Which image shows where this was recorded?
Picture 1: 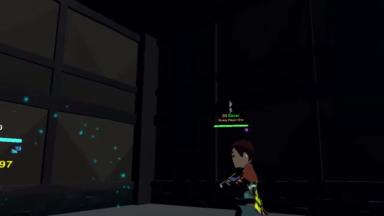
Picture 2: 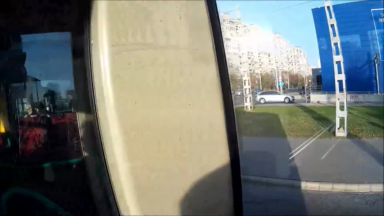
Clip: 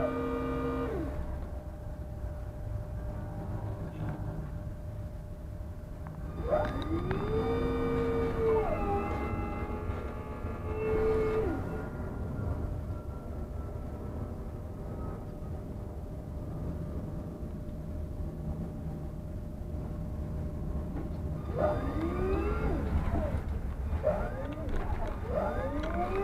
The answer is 2